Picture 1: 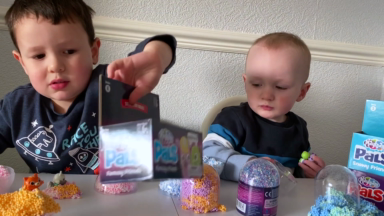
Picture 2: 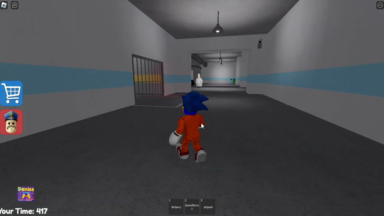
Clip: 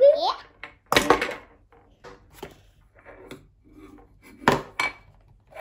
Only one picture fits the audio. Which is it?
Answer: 1